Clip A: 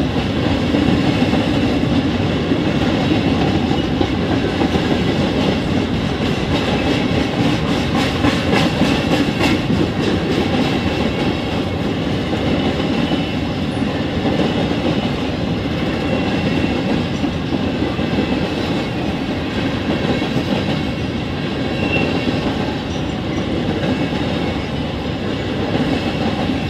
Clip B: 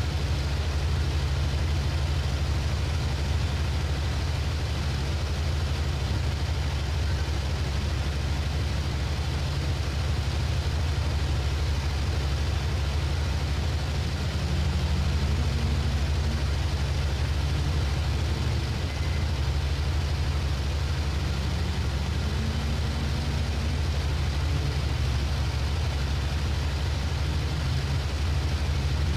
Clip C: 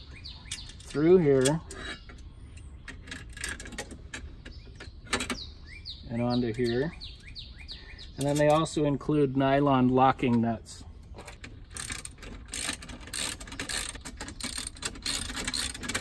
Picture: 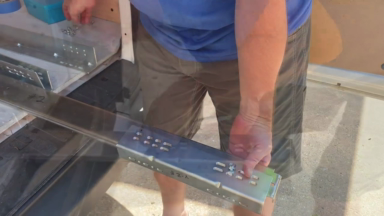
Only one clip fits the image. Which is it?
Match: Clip C